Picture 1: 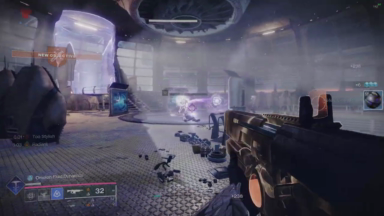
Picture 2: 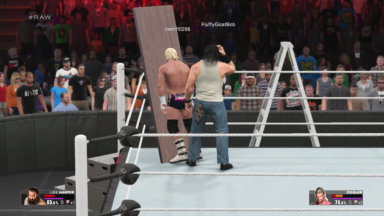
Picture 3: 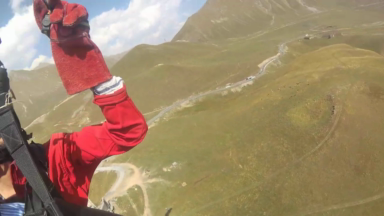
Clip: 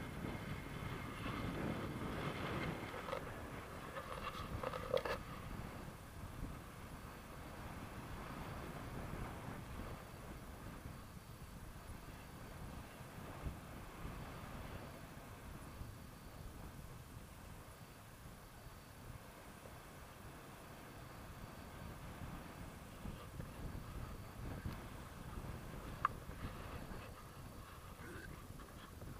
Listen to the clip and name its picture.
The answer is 3